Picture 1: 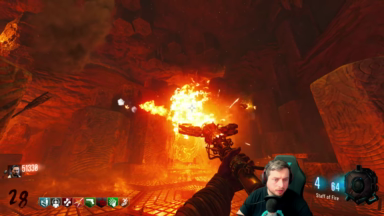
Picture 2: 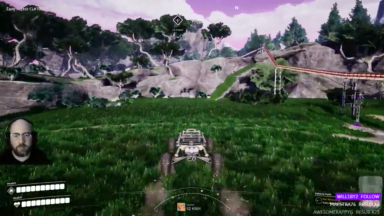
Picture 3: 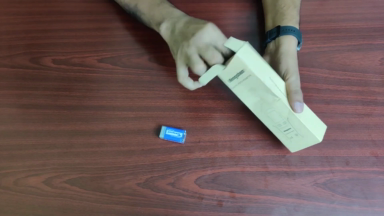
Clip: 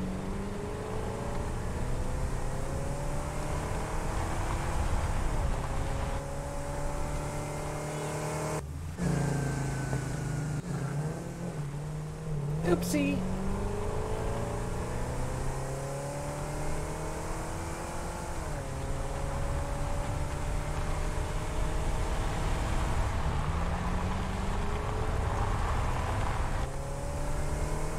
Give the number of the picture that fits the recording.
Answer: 2